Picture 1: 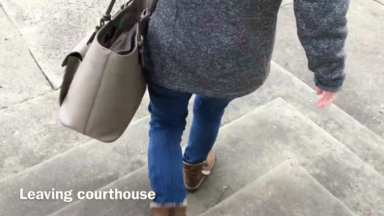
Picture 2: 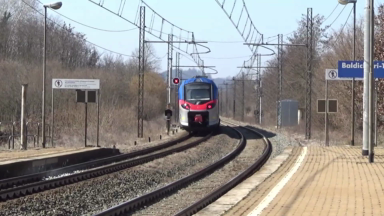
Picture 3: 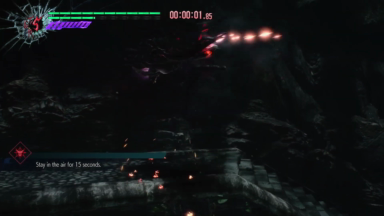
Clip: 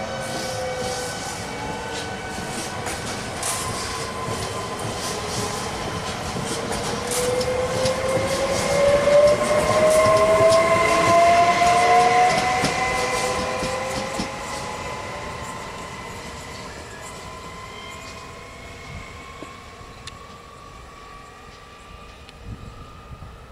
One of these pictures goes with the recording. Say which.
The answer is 2